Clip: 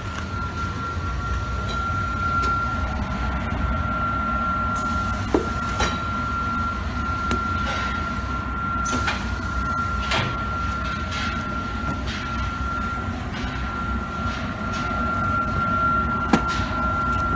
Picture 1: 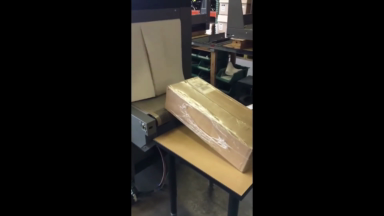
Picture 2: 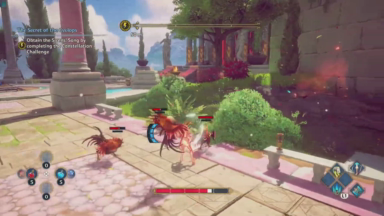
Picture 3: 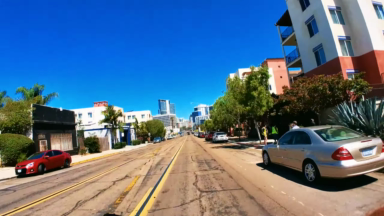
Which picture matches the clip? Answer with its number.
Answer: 1